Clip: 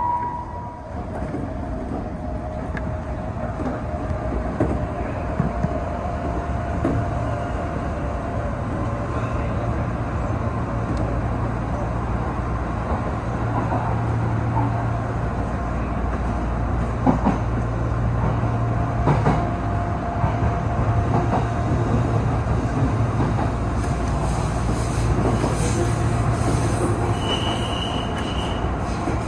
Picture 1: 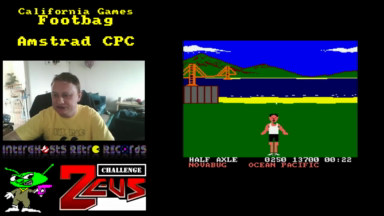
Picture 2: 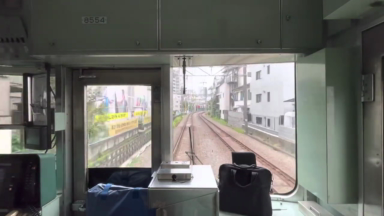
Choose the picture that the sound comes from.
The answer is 2